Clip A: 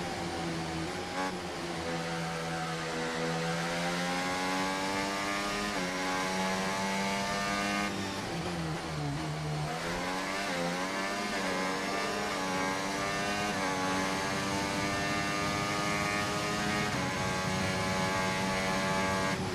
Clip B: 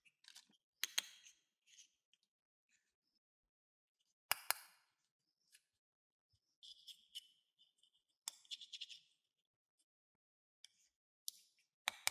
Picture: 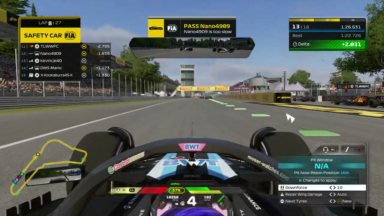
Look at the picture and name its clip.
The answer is A